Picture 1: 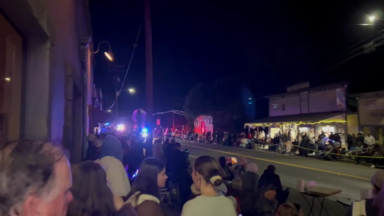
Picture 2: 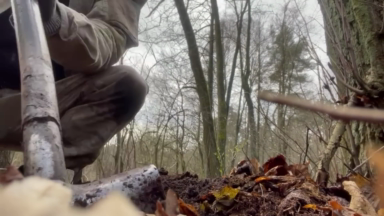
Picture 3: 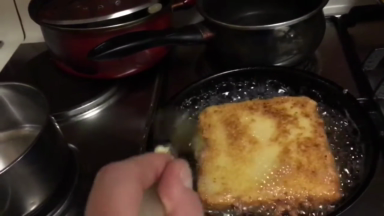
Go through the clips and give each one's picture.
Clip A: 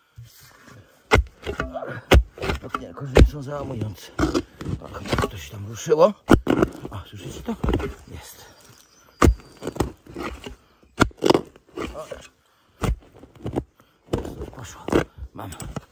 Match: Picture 2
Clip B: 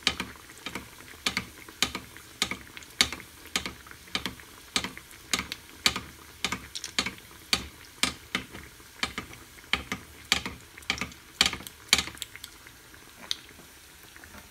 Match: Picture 3